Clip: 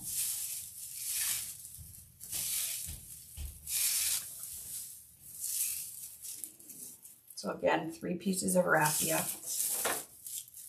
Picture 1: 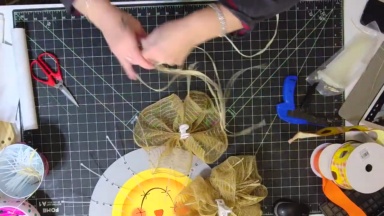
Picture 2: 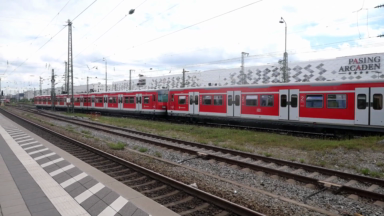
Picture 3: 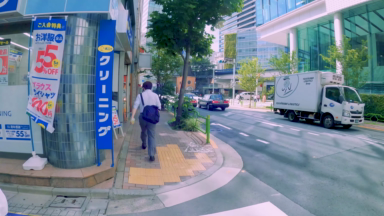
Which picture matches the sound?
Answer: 1